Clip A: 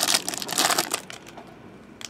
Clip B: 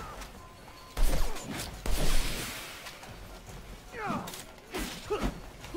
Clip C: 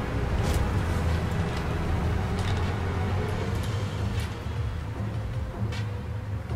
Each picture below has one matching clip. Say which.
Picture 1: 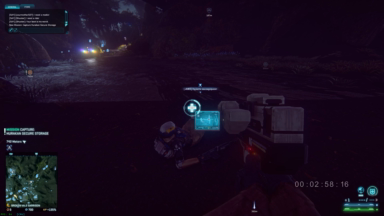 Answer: C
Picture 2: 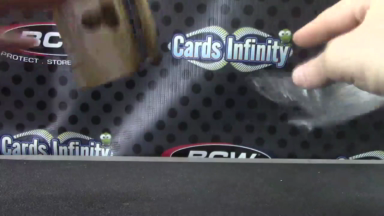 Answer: A